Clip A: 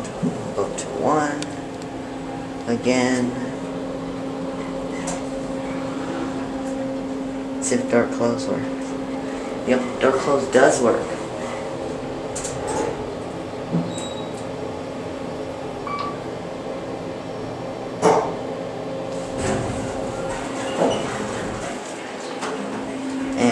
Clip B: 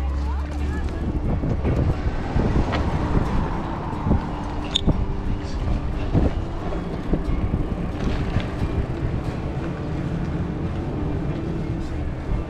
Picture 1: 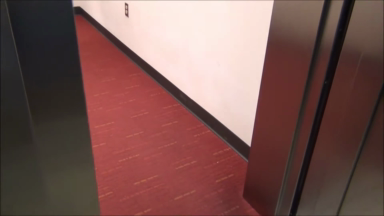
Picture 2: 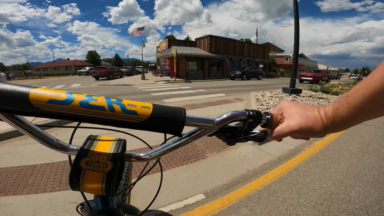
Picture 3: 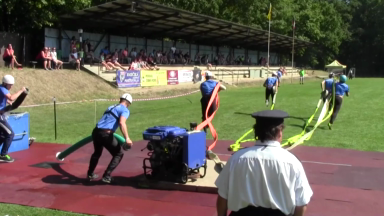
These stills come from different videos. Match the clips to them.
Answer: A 1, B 2